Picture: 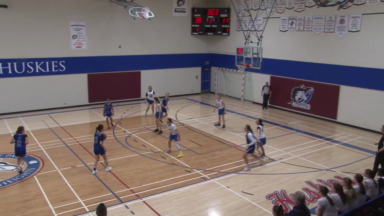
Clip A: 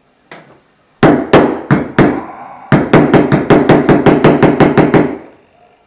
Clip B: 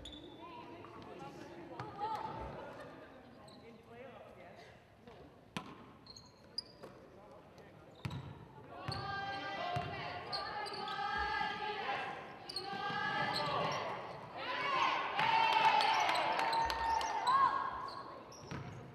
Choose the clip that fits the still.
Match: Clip B